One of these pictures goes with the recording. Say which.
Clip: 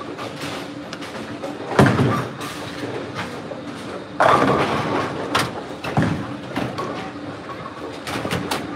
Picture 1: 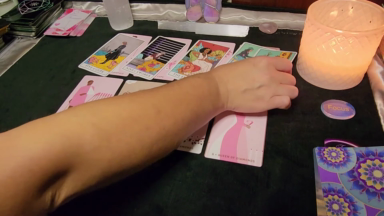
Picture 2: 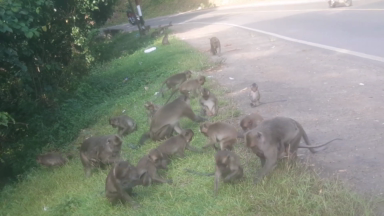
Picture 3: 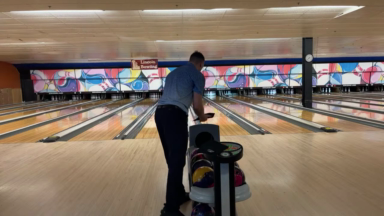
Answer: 3